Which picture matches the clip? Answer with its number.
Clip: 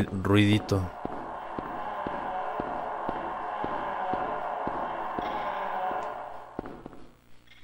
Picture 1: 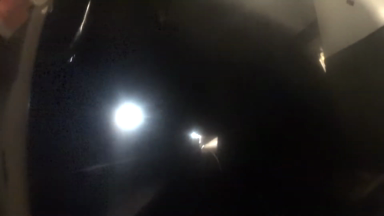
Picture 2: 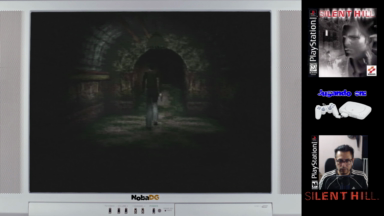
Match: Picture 2